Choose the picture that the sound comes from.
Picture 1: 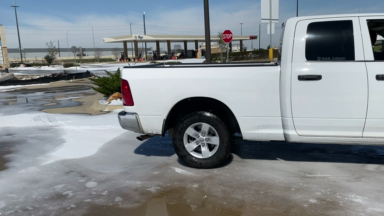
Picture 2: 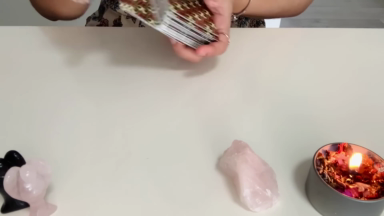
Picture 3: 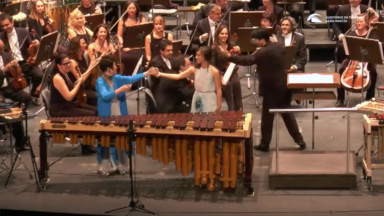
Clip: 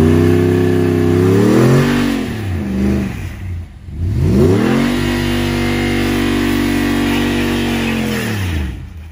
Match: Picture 1